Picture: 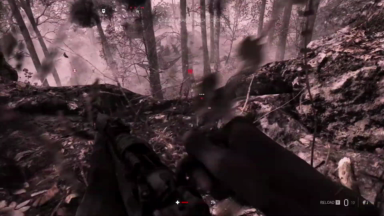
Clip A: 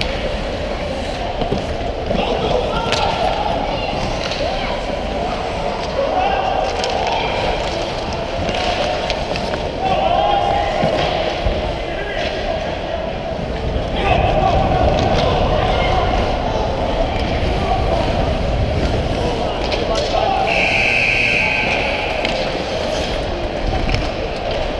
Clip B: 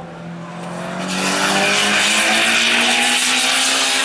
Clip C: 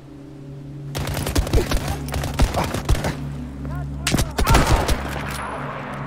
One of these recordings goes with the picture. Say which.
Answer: C